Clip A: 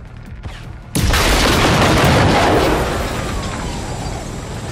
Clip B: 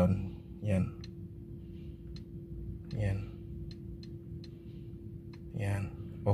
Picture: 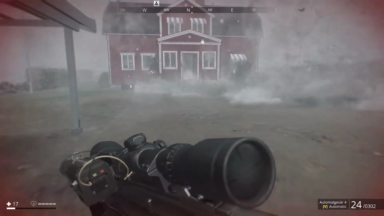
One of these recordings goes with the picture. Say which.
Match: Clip A